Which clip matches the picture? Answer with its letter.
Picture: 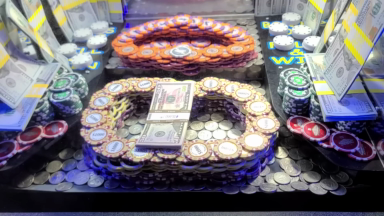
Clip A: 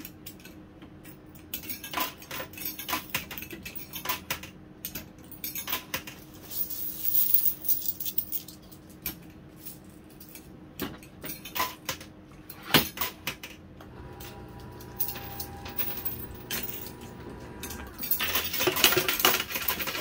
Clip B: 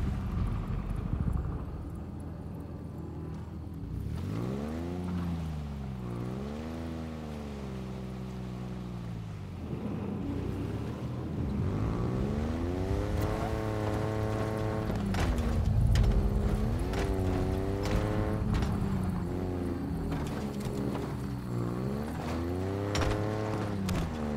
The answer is A